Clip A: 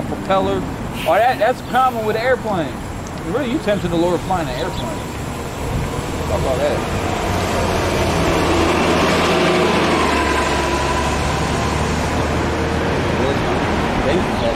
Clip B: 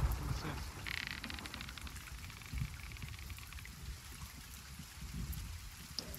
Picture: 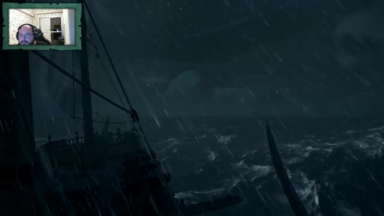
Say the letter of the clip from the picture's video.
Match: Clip B